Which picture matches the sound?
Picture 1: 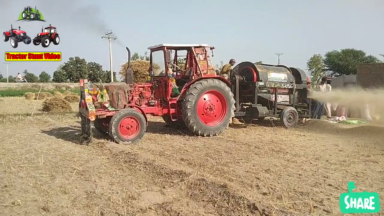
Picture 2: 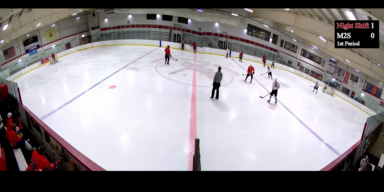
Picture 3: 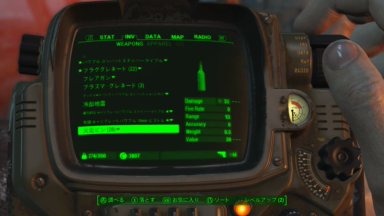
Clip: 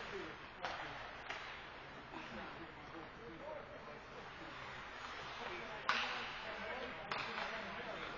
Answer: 2